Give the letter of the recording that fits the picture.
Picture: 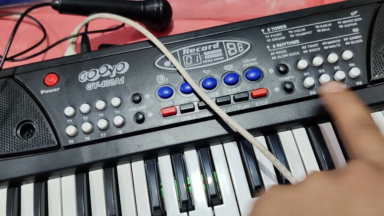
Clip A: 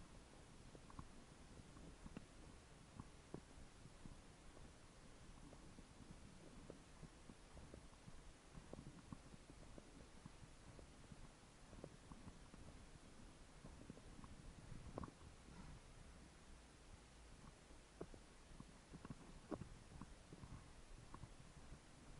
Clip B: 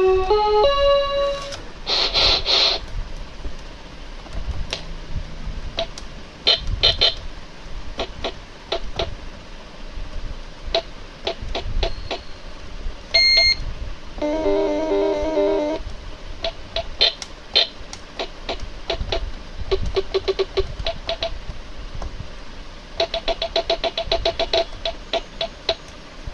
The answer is B